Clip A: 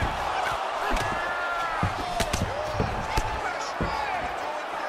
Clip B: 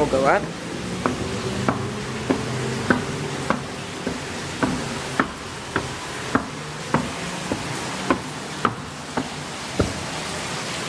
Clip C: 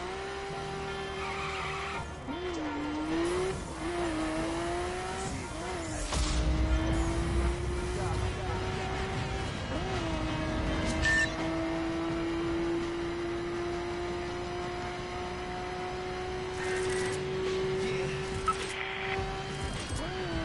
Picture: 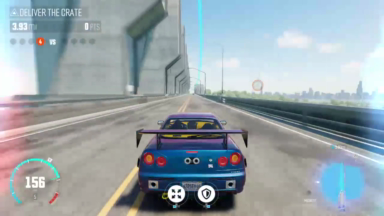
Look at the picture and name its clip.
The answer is C